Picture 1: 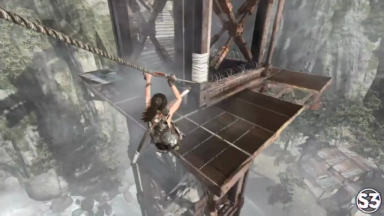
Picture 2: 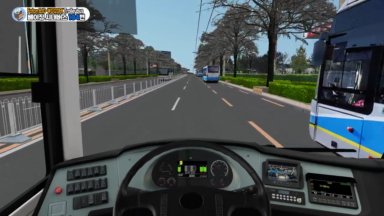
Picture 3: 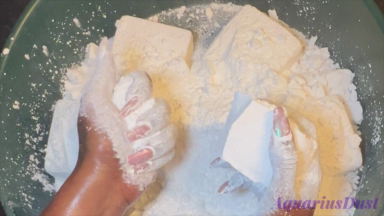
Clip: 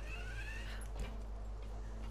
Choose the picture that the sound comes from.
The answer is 1